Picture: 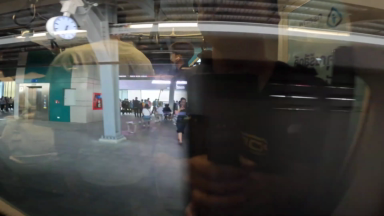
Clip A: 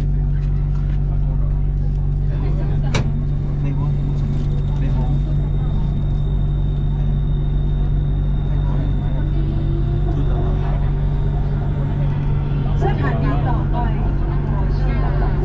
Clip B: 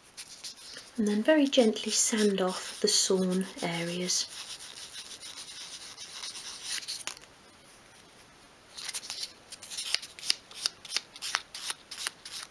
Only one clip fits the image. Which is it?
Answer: A